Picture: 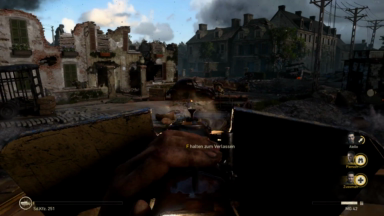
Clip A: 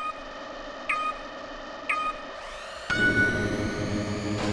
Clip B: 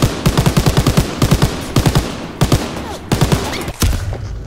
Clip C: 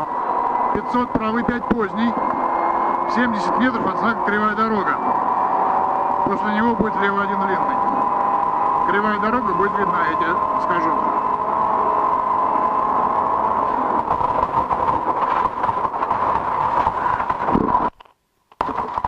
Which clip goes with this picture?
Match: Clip B